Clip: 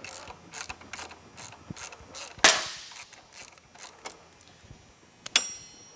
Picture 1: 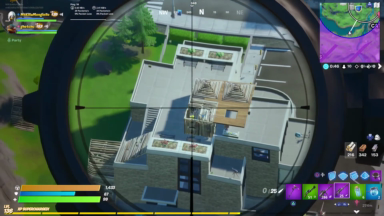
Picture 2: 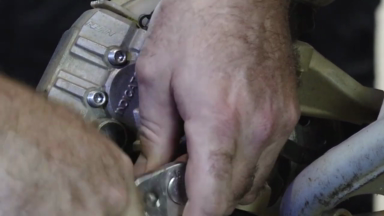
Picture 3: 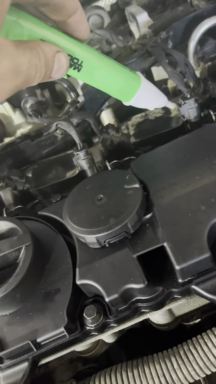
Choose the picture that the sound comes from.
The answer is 2